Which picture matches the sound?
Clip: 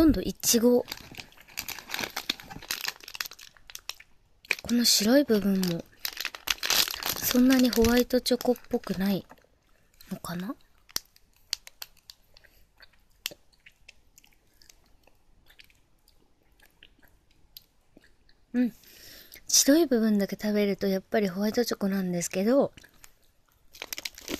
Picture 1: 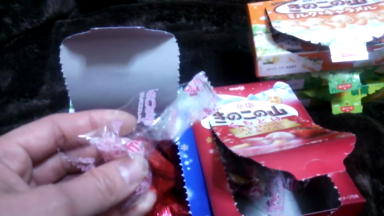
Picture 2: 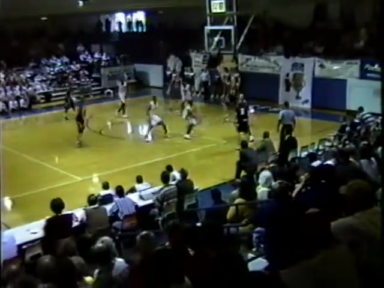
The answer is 1